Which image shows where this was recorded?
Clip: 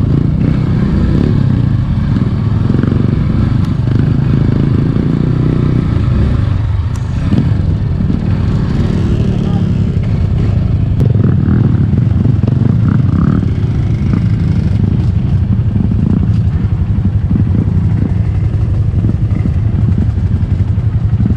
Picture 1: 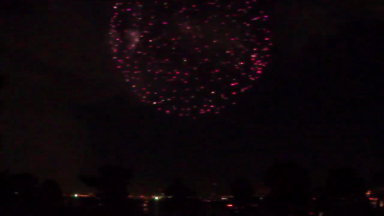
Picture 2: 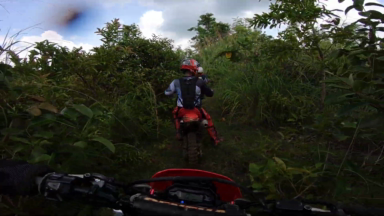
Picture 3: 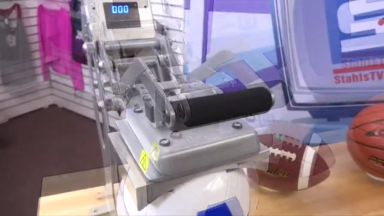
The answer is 2